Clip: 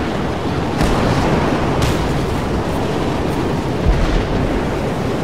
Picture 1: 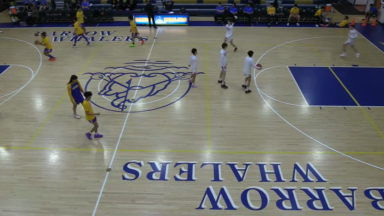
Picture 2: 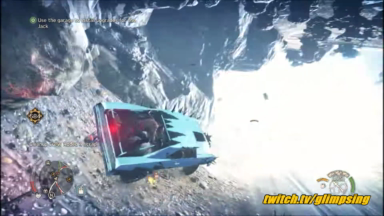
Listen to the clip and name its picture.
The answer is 2